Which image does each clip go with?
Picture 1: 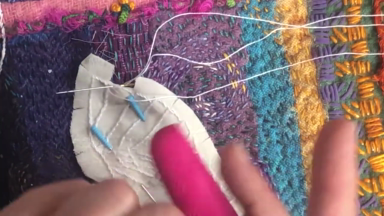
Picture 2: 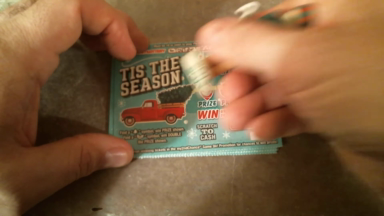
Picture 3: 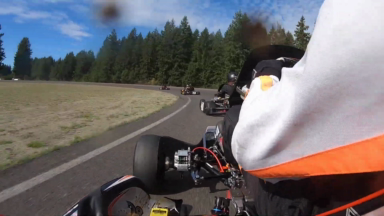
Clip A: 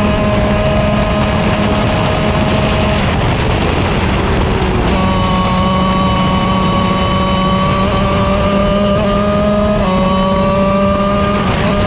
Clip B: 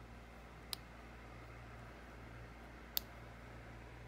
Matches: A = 3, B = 1